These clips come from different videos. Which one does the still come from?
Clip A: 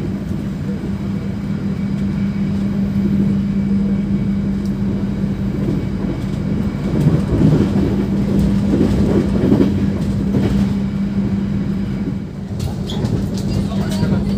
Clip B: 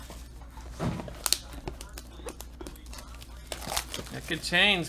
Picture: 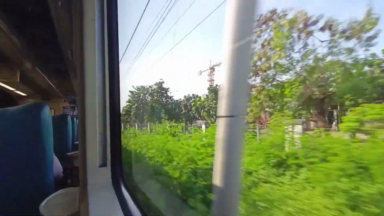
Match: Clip A